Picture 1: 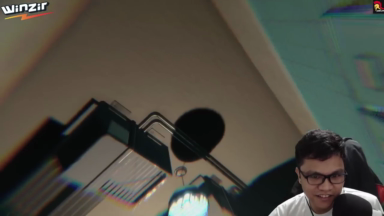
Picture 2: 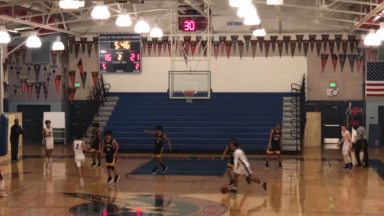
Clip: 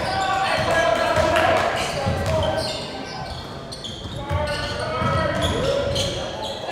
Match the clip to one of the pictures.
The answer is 2